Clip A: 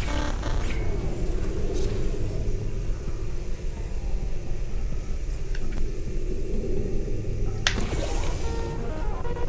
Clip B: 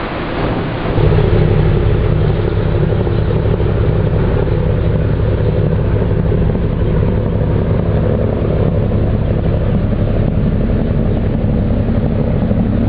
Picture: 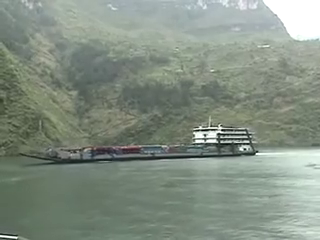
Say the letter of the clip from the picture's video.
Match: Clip B